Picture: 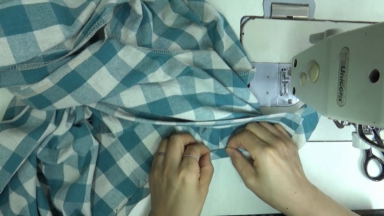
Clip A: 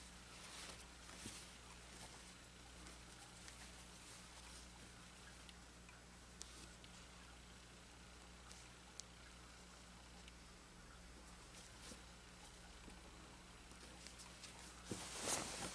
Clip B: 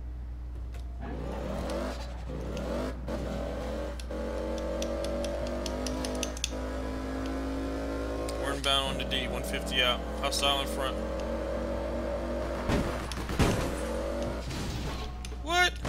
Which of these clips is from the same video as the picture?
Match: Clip A